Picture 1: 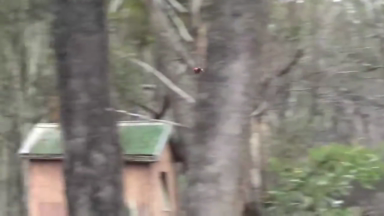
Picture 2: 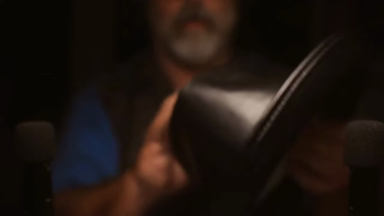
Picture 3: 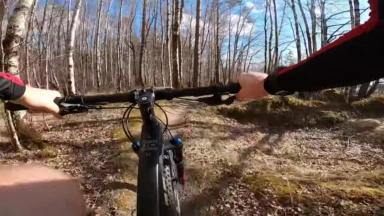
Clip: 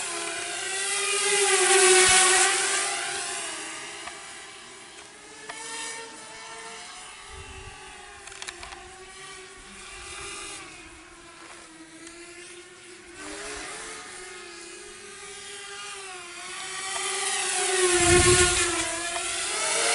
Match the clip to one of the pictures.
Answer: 1